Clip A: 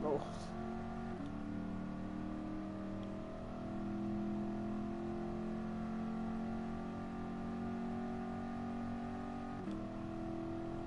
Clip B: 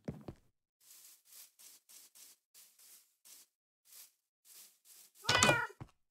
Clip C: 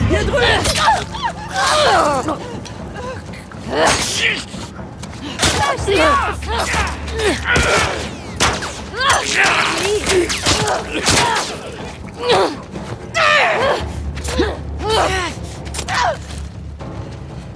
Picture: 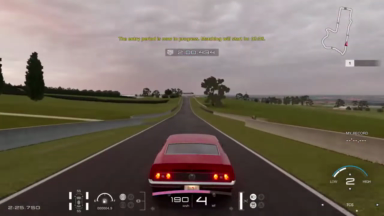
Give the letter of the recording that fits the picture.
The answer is A